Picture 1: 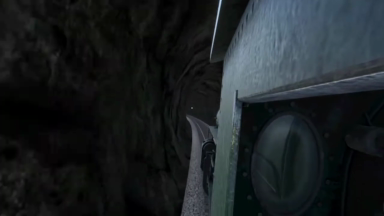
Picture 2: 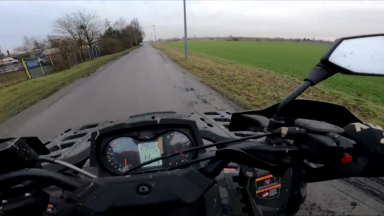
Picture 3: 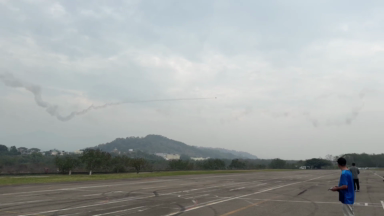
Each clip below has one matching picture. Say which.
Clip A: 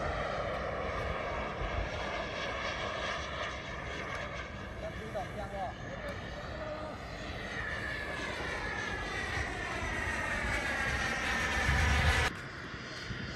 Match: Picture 3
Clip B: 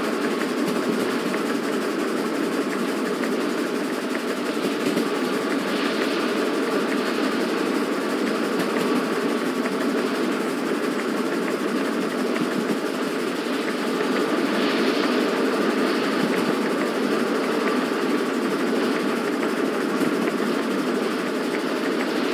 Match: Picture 1